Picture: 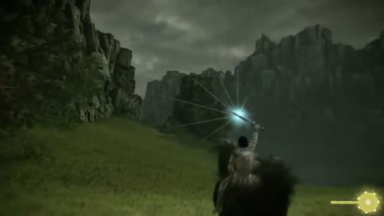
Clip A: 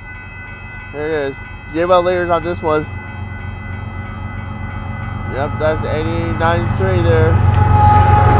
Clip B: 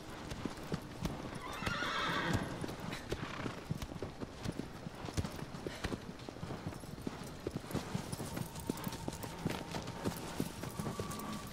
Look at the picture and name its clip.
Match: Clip B